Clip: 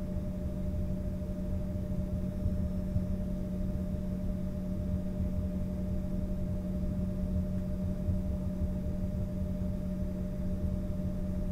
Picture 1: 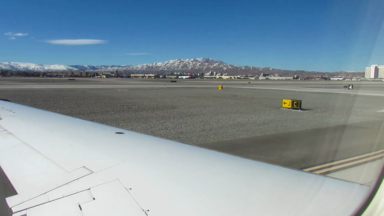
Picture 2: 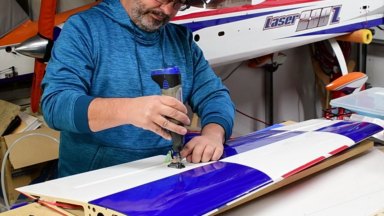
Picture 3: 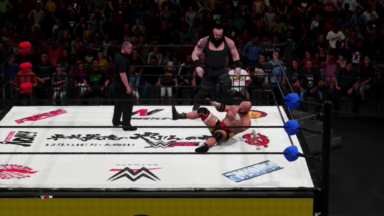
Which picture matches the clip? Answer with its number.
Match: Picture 1